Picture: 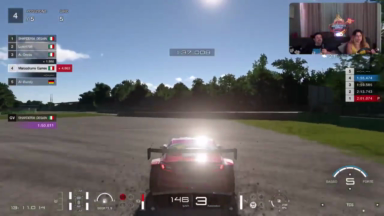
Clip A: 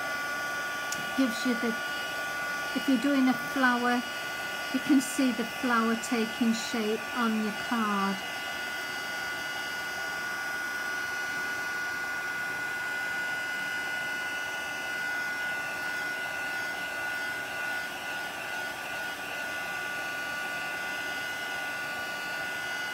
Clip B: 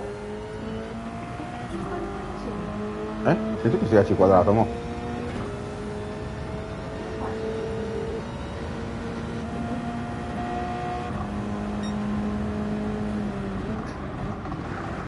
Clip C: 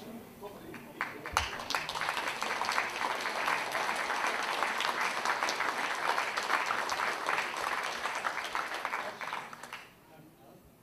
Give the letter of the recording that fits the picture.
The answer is B